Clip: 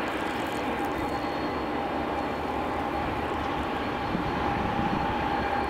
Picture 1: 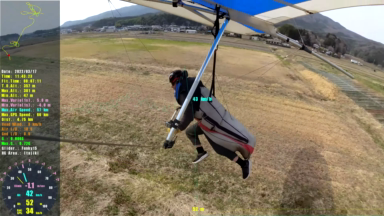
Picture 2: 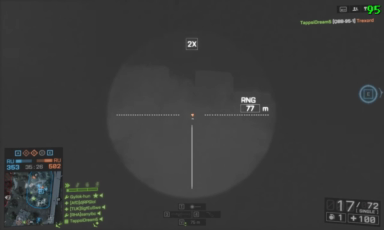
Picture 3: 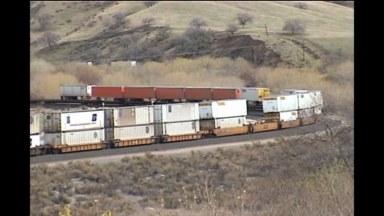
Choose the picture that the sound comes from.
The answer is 3